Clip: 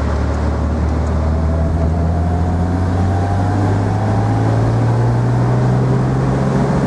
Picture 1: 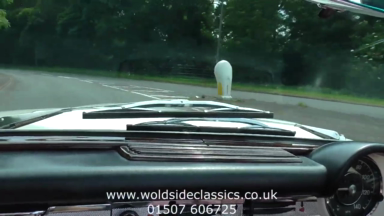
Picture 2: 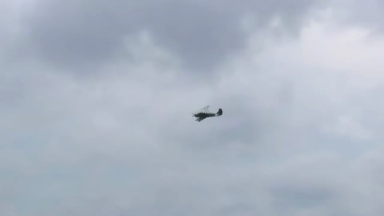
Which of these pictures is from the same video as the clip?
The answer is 1